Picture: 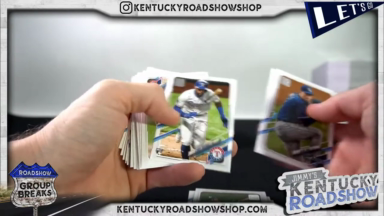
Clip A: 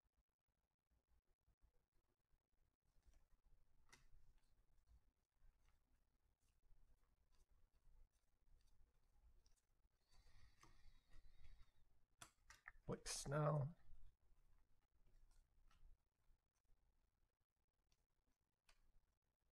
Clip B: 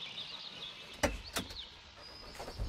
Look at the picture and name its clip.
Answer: A